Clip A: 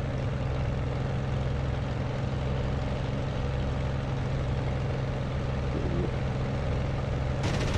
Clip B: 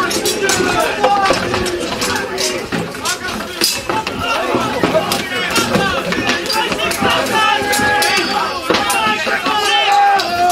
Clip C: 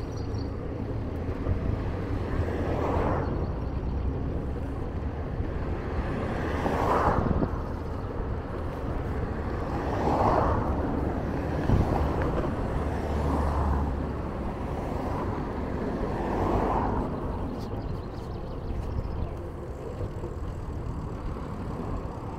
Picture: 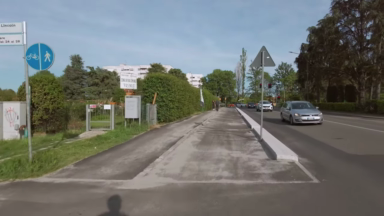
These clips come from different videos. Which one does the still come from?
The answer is C